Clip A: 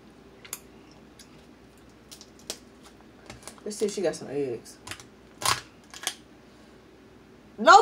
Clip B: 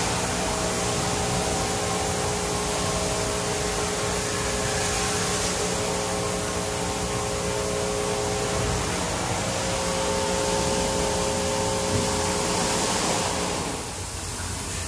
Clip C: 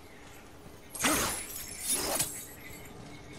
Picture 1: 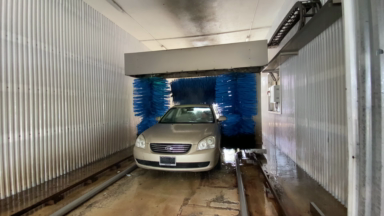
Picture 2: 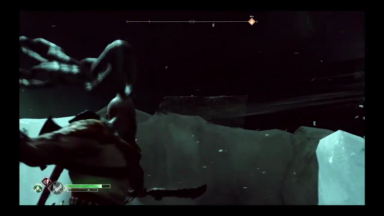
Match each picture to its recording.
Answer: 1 B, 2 C